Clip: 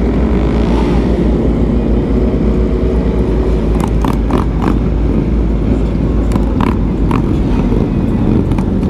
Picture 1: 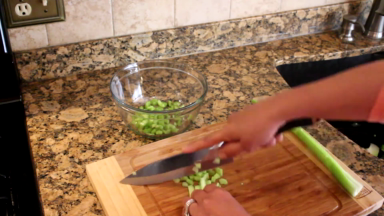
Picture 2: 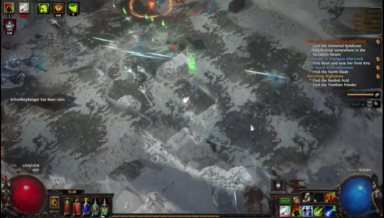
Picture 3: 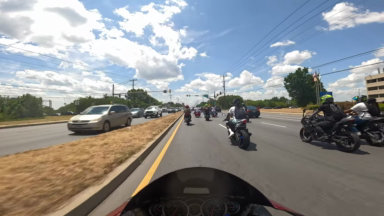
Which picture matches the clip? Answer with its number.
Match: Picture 3